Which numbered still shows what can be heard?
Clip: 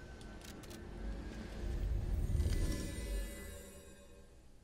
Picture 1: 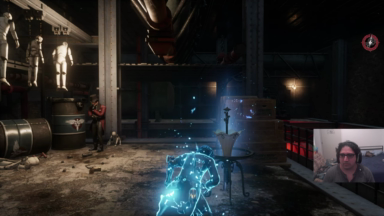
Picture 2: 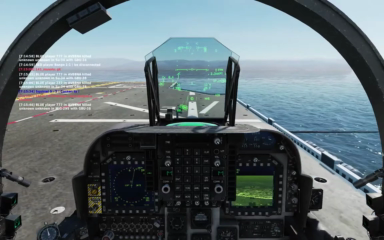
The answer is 1